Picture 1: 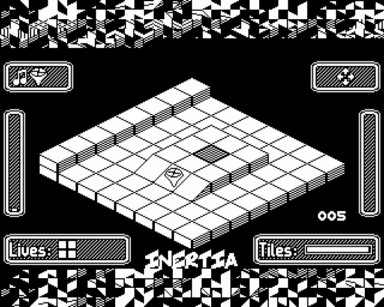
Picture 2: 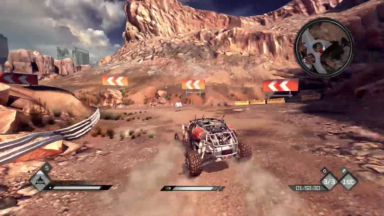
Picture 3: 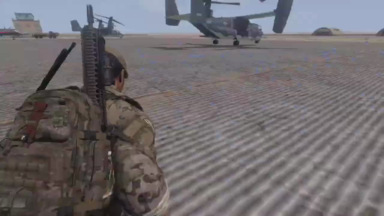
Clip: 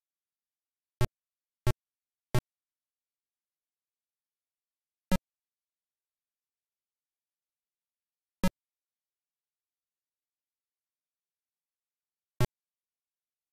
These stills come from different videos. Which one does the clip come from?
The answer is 1